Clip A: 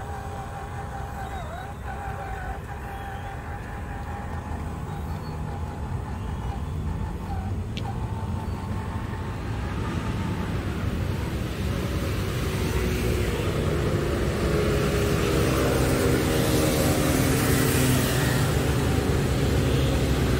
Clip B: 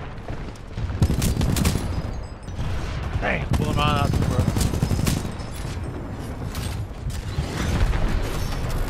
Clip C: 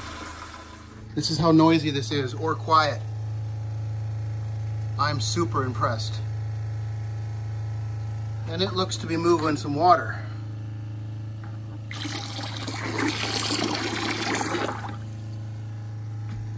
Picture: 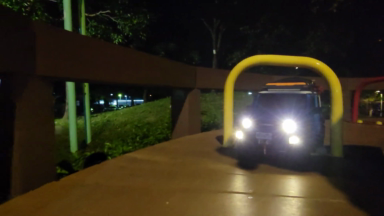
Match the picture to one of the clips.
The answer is A